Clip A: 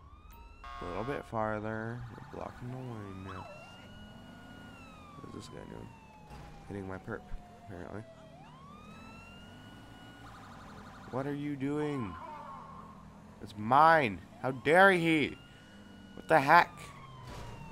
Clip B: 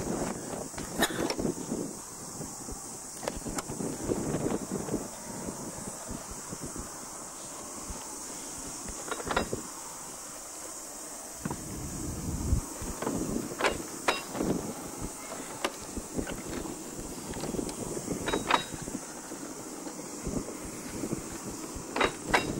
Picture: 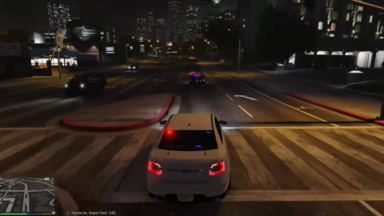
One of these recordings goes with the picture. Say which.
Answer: A